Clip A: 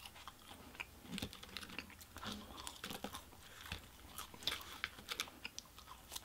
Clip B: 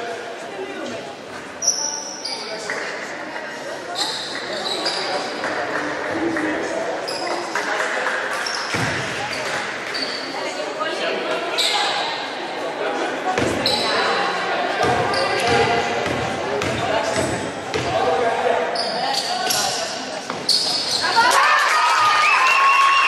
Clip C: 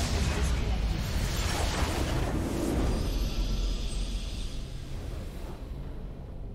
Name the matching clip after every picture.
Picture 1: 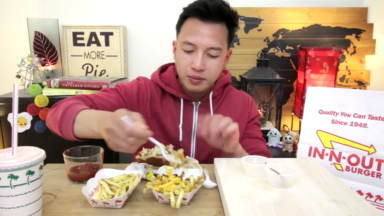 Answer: A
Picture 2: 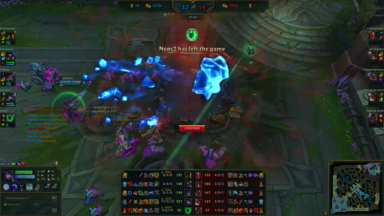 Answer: C